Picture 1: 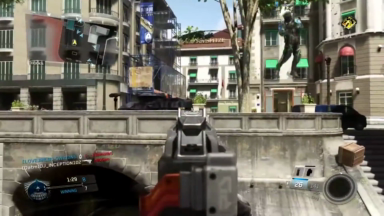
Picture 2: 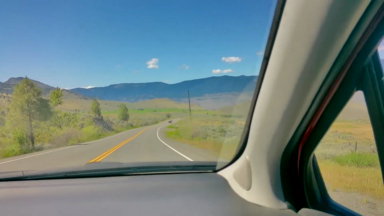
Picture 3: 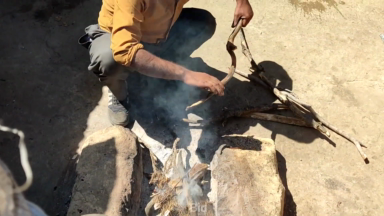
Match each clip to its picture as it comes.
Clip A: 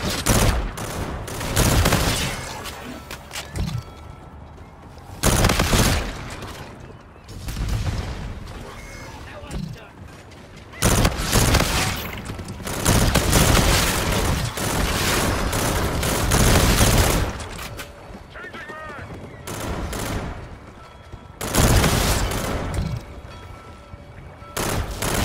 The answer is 1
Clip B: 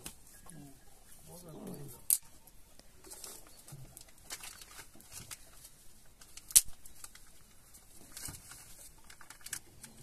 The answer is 3